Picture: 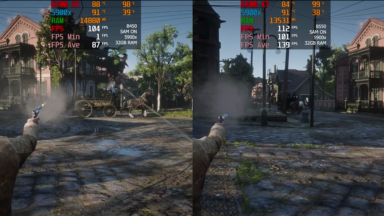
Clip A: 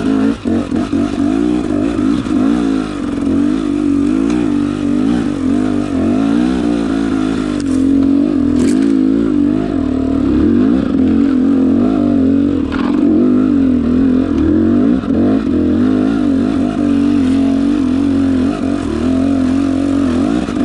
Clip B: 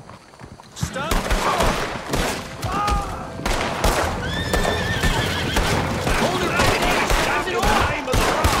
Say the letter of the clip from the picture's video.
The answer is B